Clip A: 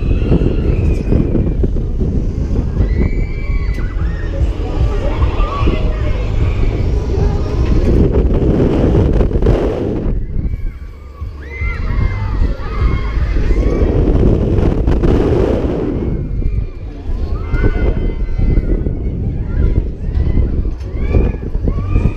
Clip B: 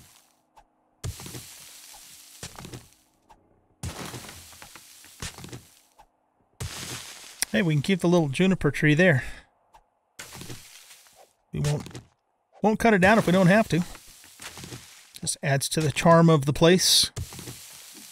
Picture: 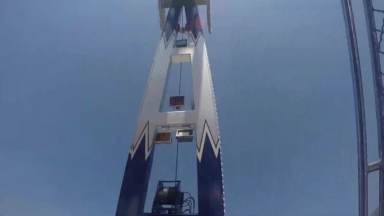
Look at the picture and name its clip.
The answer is A